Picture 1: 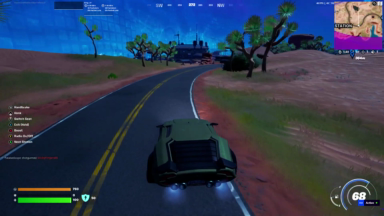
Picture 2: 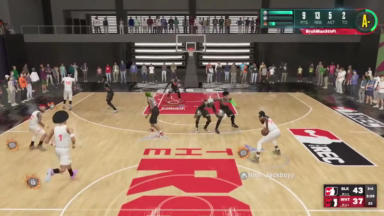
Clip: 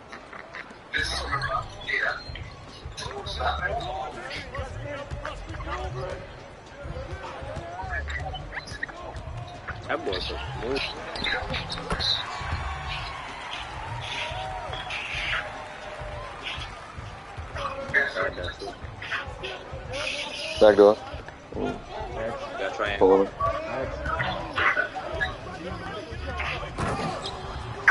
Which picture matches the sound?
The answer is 2